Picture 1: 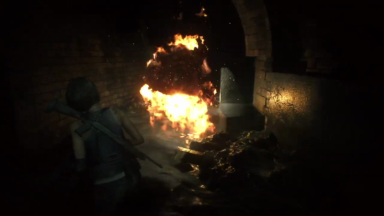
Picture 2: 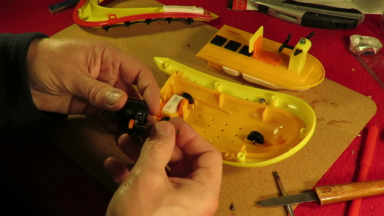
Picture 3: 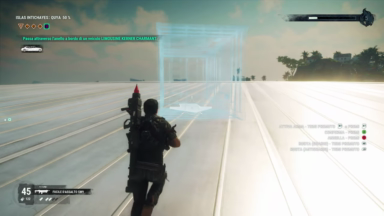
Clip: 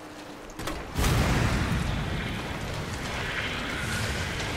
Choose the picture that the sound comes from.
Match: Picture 1